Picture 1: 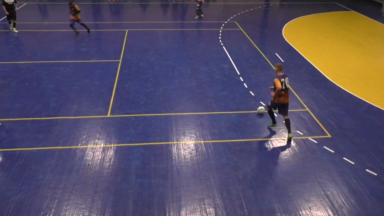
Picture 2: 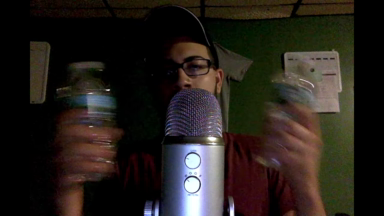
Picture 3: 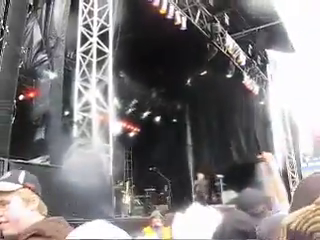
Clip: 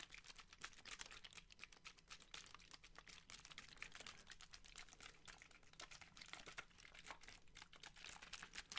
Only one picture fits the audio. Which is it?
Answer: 2